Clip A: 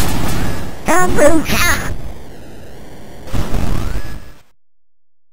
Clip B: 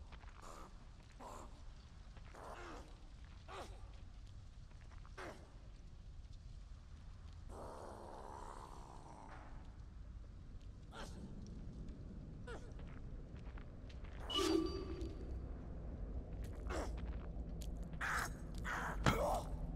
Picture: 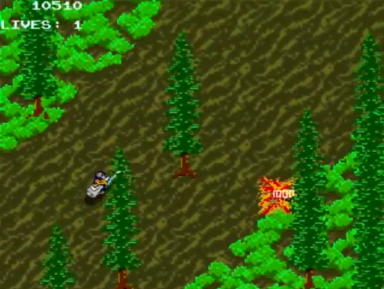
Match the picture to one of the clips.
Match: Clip A